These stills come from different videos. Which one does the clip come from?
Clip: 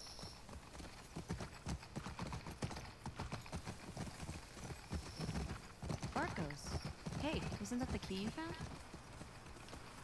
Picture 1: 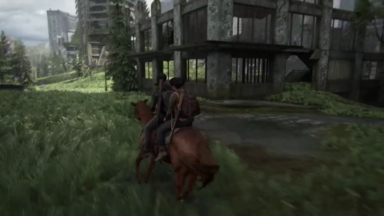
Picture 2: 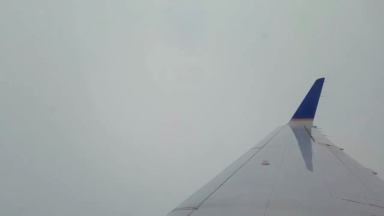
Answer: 1